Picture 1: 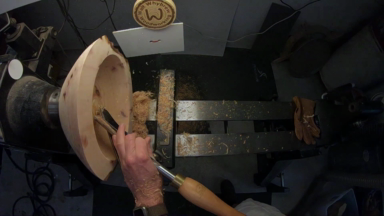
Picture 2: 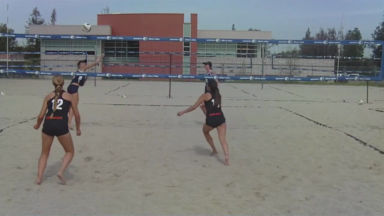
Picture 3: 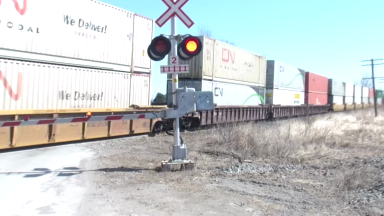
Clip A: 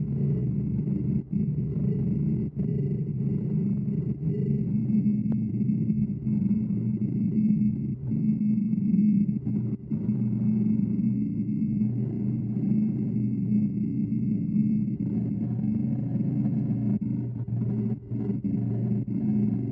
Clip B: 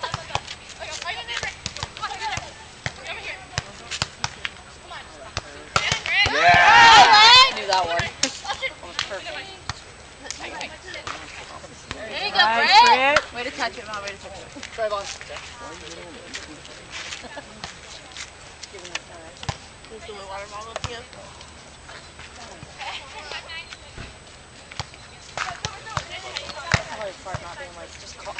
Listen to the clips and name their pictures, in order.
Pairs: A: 1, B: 2